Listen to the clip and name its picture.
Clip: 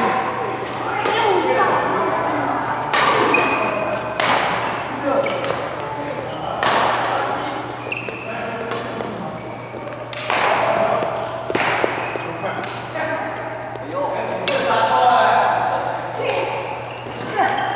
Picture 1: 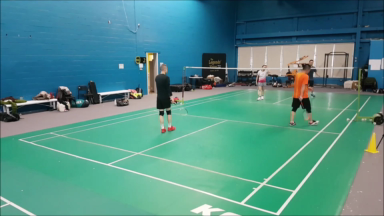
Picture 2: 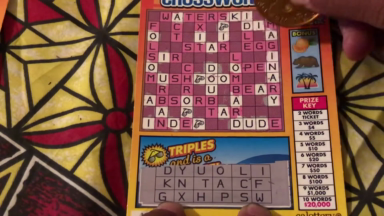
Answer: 1